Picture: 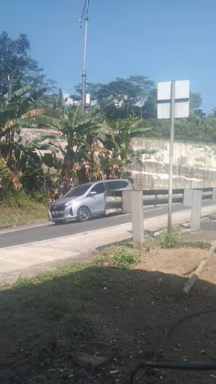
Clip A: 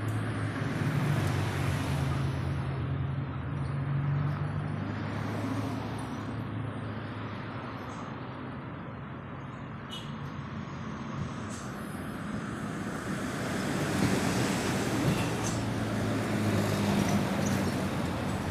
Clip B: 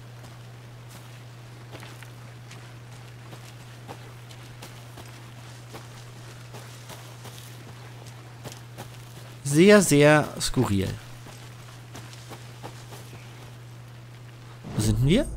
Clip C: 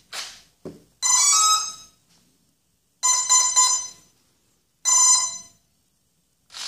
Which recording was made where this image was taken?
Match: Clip A